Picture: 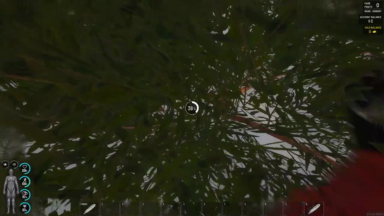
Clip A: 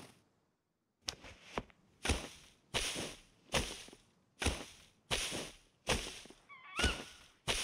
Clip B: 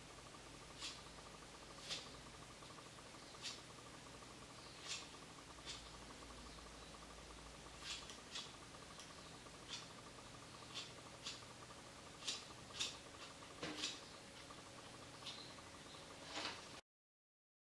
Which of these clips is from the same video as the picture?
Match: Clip A